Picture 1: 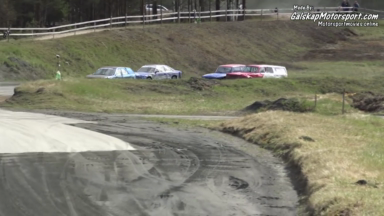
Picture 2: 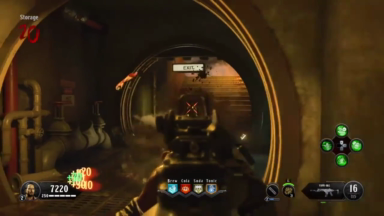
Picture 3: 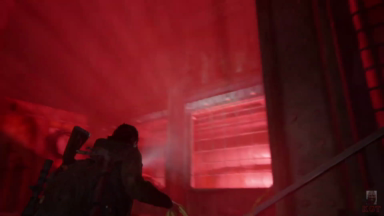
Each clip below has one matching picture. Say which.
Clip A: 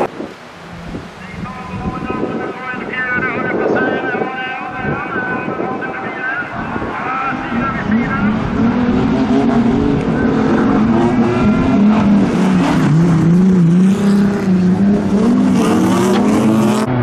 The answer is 1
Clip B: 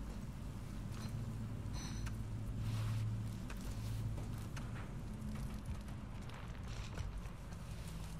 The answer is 3